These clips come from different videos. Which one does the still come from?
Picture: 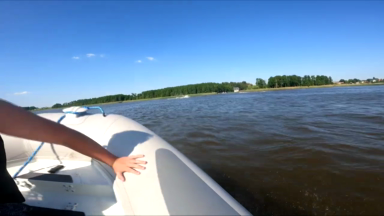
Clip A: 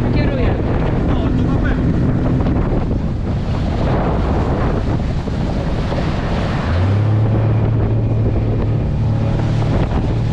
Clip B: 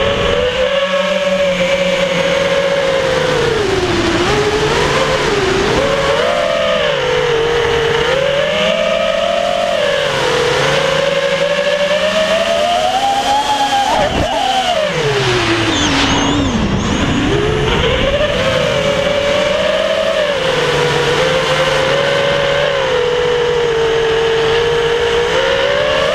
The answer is A